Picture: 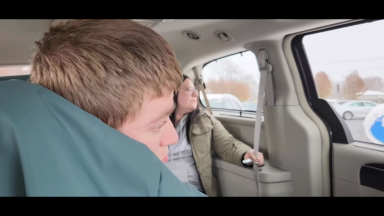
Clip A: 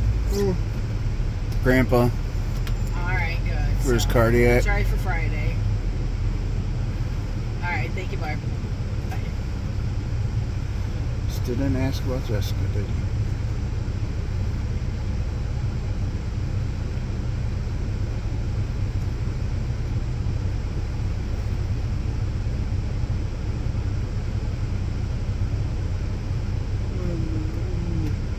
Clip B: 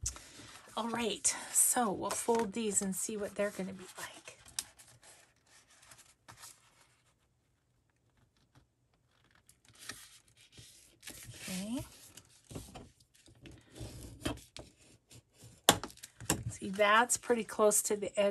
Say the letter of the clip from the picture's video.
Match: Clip A